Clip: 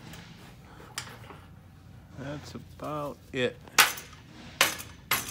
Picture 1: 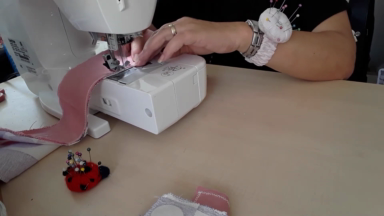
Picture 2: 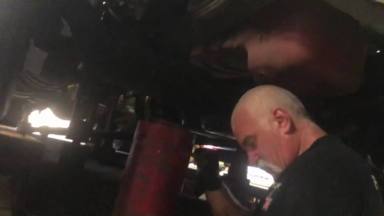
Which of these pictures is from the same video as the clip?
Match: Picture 2